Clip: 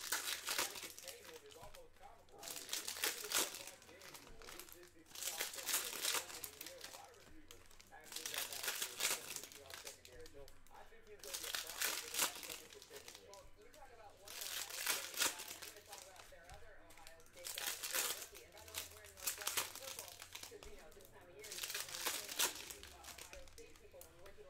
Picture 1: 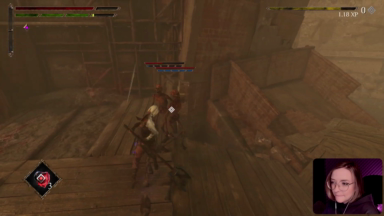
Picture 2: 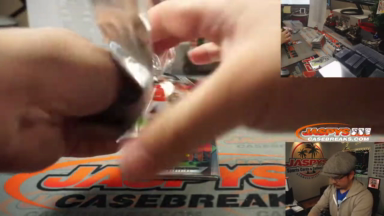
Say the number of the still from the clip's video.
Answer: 2